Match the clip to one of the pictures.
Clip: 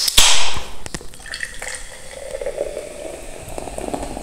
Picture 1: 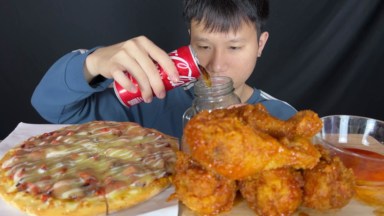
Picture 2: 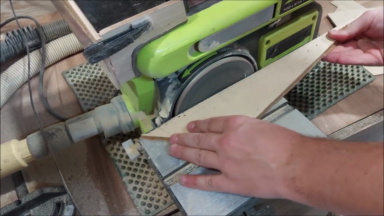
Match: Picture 1